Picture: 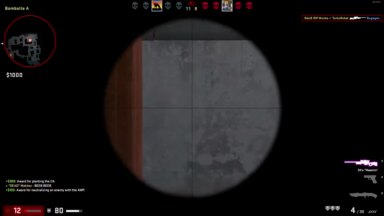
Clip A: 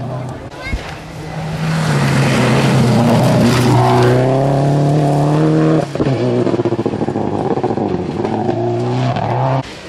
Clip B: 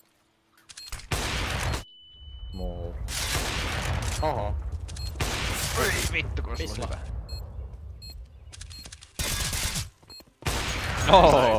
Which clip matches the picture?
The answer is B